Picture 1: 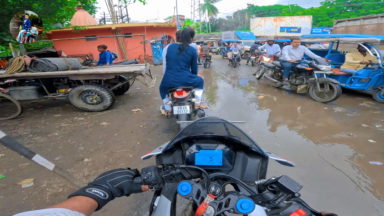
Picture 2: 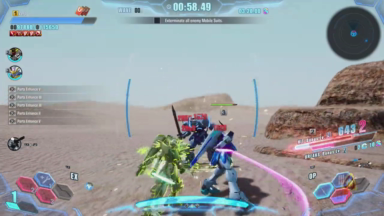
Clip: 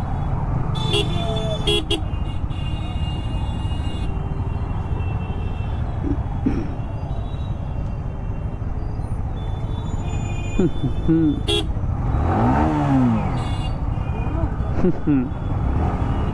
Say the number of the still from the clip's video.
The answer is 1